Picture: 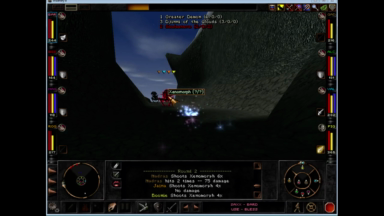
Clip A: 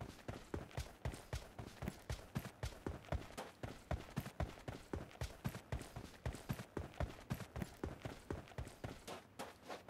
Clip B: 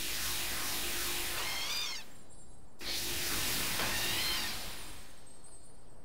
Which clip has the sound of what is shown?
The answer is B